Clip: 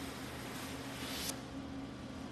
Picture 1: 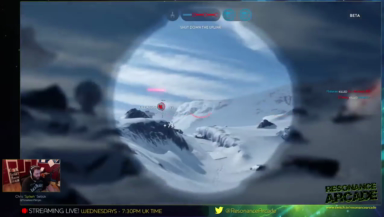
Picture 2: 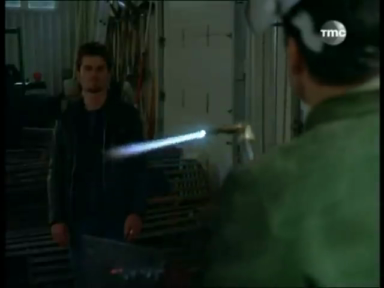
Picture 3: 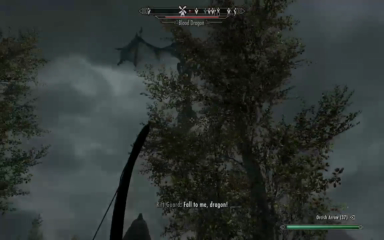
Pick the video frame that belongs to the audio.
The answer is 2